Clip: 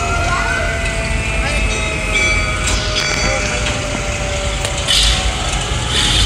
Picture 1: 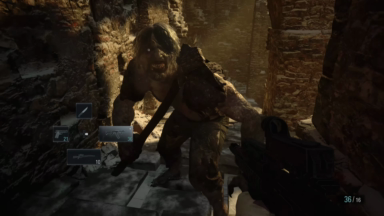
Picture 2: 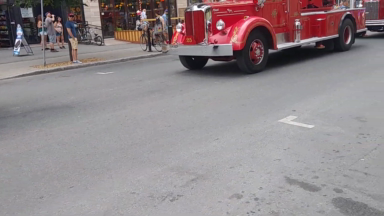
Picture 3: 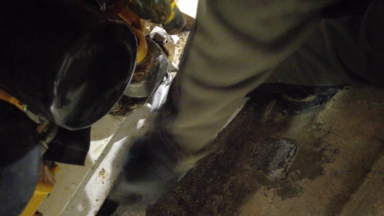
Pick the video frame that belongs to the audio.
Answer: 2